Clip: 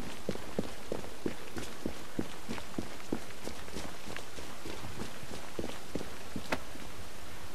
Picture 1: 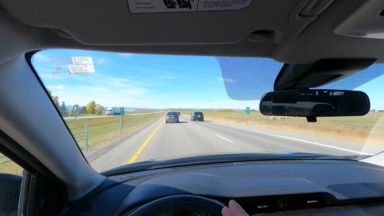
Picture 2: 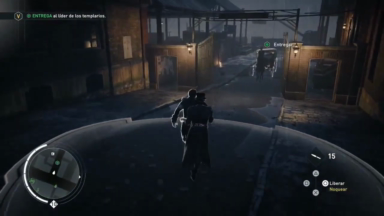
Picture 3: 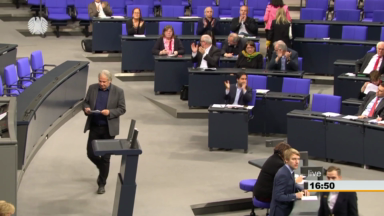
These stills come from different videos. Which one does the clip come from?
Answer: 2